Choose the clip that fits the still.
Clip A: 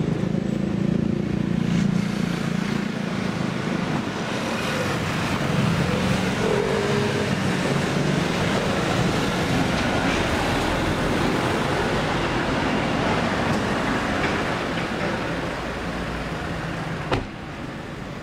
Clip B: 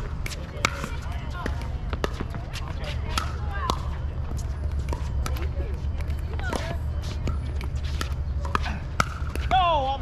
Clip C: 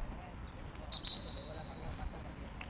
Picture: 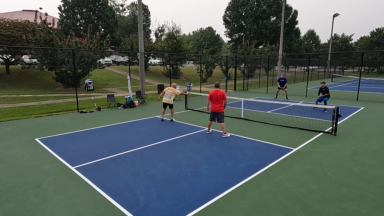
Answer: B